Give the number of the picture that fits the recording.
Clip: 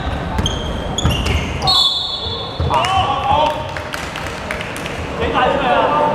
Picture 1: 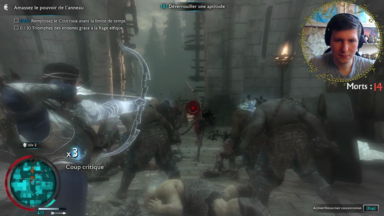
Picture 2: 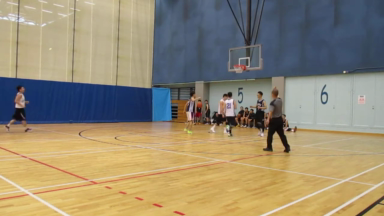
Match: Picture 2